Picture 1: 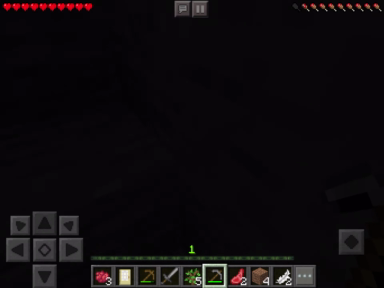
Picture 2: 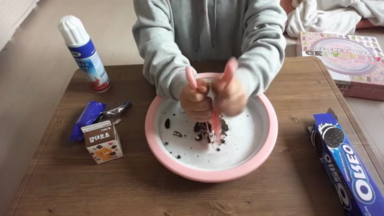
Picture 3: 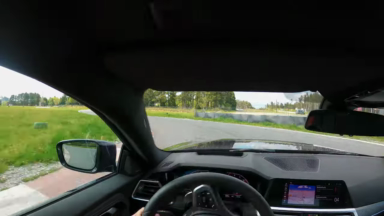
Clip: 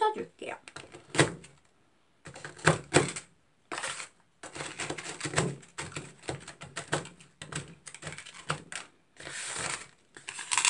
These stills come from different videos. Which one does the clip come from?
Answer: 2